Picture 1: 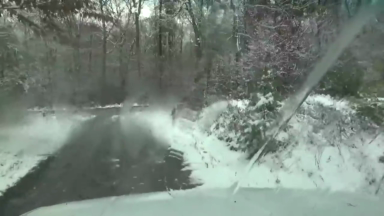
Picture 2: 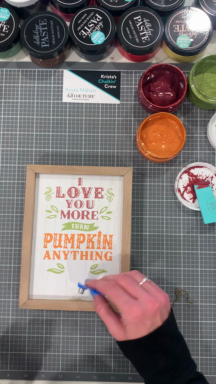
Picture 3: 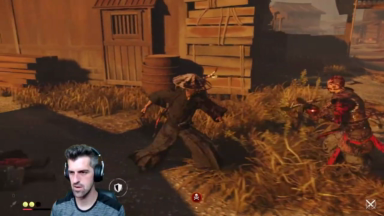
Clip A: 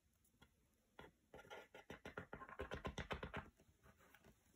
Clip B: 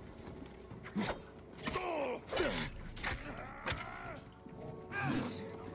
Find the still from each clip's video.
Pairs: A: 2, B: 3